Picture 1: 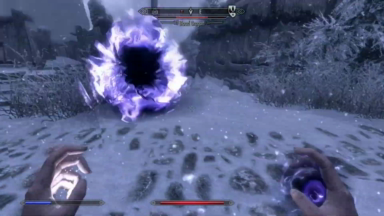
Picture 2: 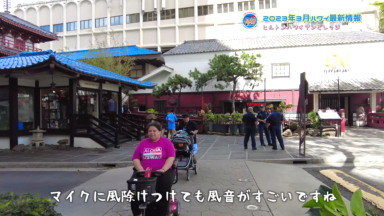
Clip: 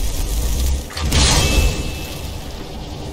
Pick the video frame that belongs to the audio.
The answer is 1